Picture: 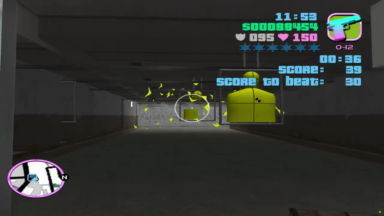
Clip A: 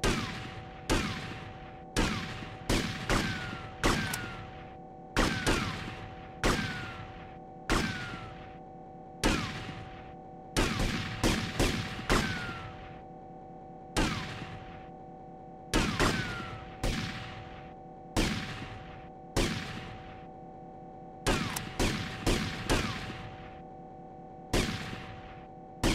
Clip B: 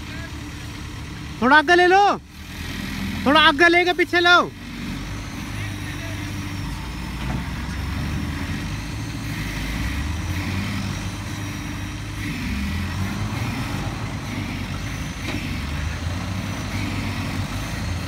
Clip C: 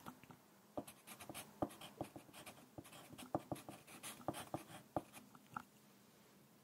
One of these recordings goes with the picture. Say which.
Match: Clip A